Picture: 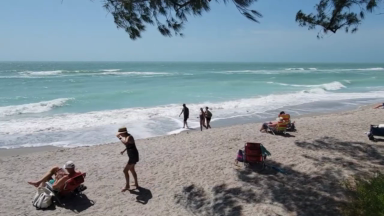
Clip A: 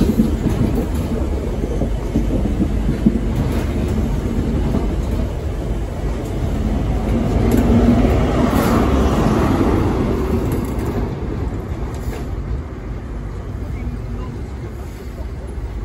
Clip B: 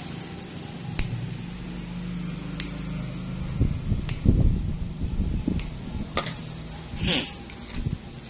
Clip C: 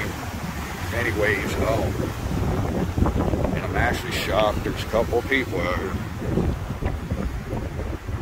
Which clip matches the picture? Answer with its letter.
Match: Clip C